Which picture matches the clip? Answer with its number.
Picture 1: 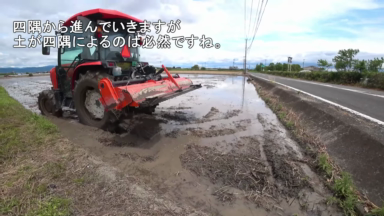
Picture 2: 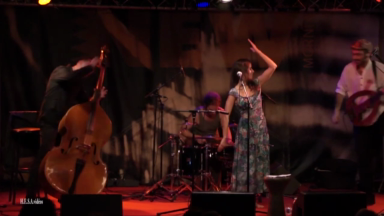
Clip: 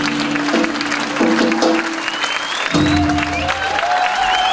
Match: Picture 2